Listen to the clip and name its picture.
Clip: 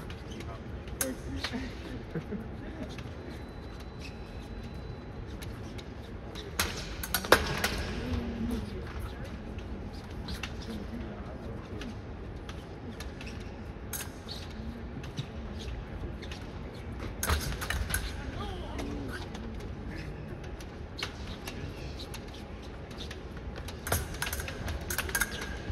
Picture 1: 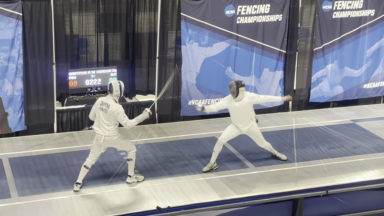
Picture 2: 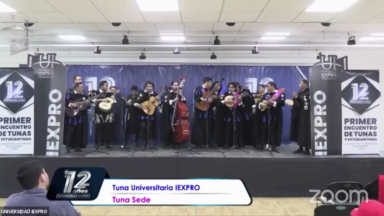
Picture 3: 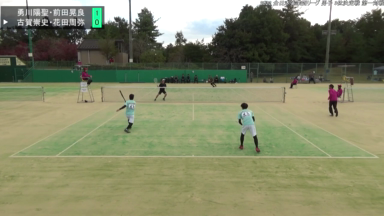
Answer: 1